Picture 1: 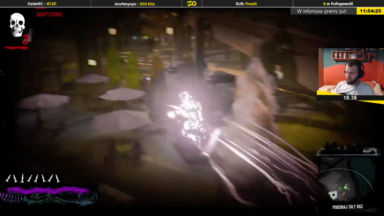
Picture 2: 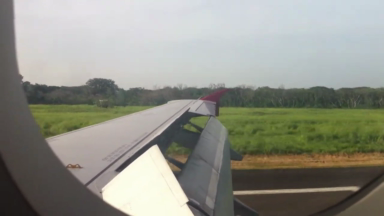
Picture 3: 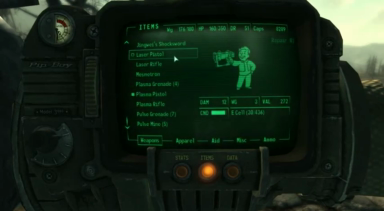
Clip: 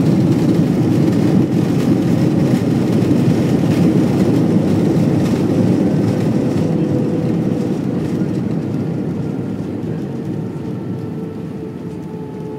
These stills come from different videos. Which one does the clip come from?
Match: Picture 2